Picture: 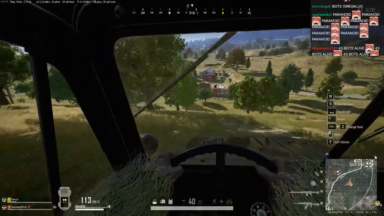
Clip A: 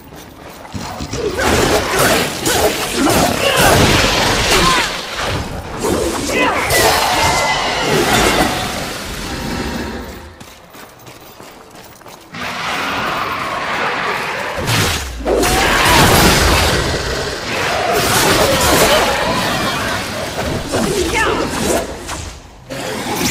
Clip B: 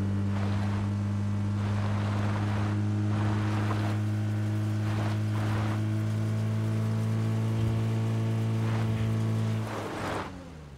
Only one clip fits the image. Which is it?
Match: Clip B